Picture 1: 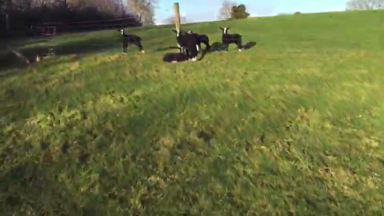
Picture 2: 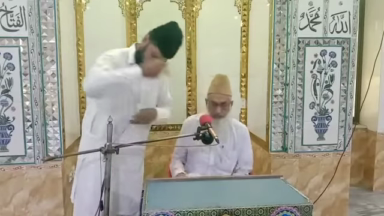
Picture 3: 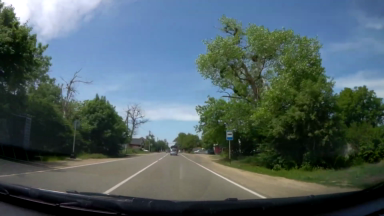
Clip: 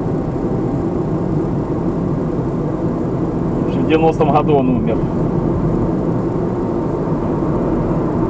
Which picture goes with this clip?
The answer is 3